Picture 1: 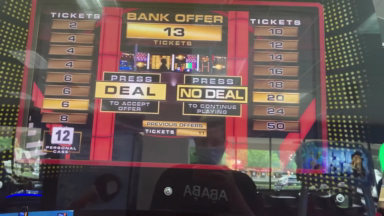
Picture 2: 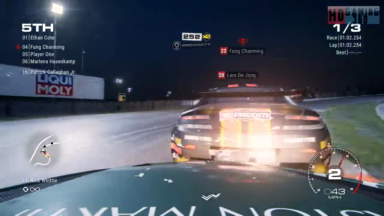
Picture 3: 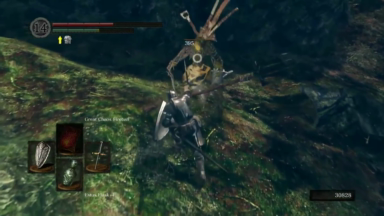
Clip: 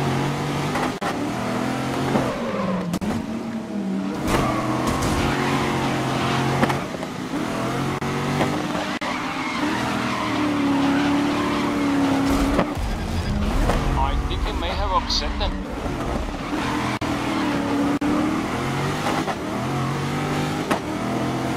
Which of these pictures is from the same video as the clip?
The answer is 2